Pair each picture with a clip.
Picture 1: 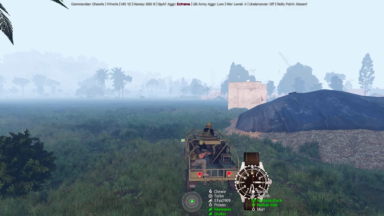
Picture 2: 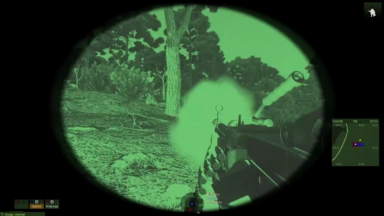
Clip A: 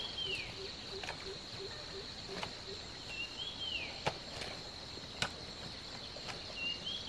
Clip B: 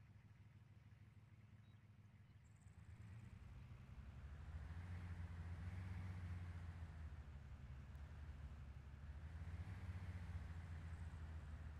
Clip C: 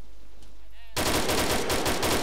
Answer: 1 B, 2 C